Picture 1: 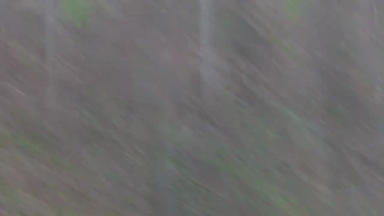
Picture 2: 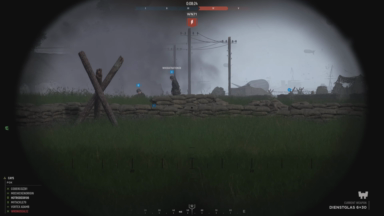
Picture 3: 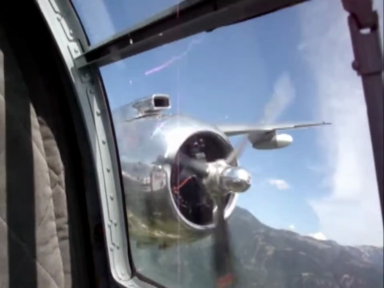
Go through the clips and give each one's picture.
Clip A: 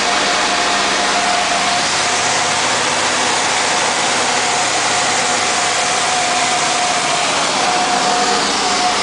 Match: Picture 3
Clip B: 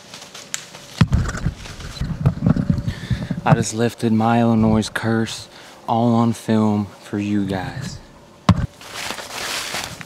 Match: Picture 1